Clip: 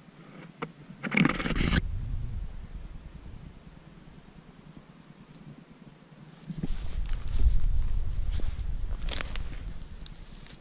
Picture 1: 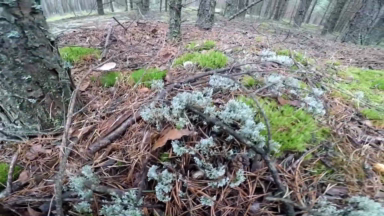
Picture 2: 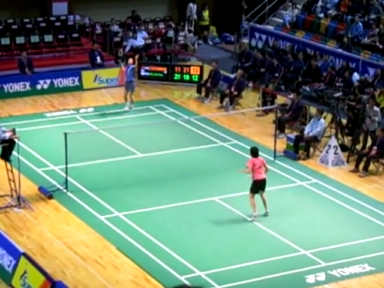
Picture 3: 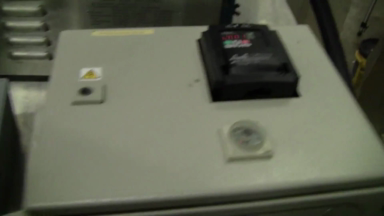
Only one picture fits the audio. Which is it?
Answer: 1